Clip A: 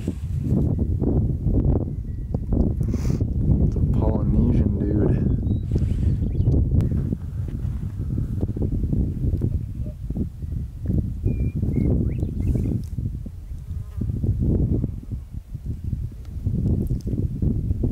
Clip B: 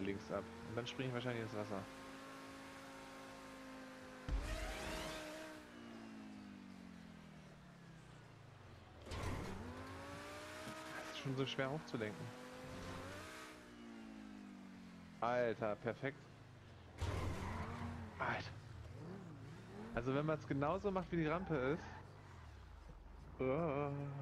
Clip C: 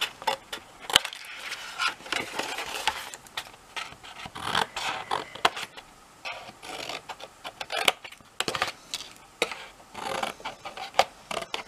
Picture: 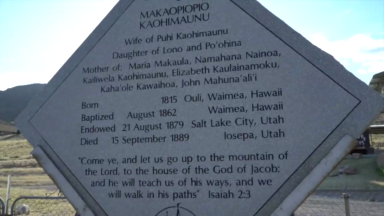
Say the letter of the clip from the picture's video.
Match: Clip A